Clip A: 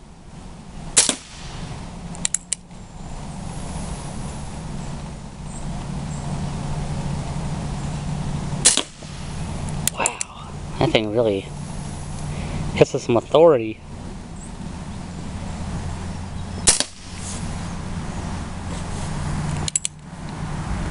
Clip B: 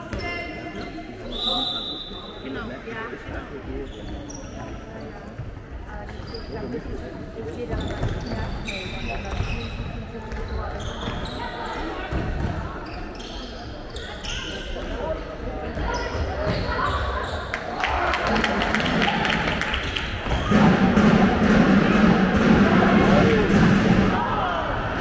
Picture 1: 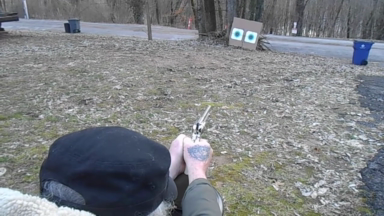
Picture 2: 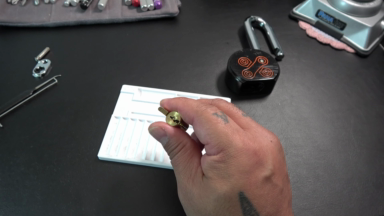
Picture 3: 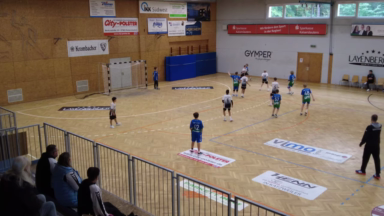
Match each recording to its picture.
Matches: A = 1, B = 3